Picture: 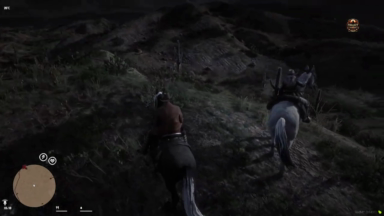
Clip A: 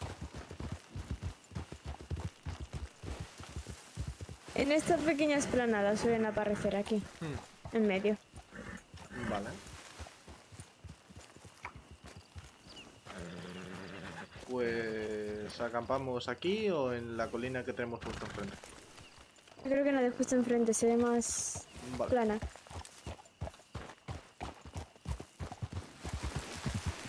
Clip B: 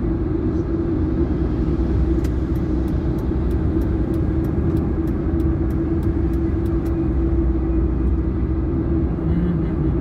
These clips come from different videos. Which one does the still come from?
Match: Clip A